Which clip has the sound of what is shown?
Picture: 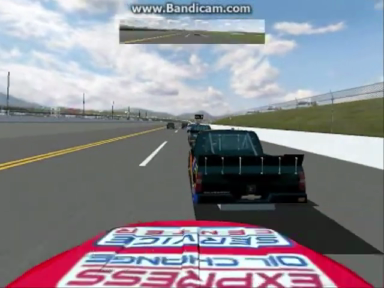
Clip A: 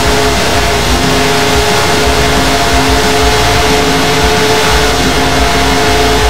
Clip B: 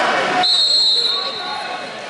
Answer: A